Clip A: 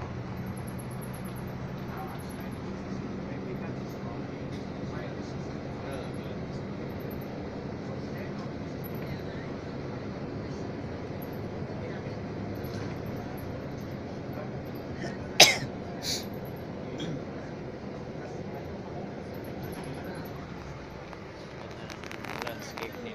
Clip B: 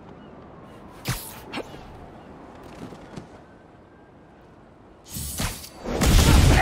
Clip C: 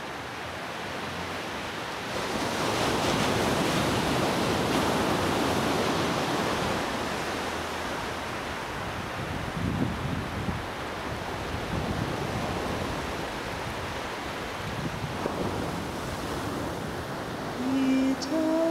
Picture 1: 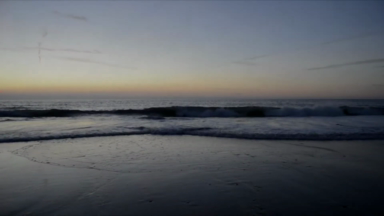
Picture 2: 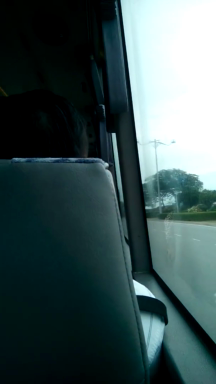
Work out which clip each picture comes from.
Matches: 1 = C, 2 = A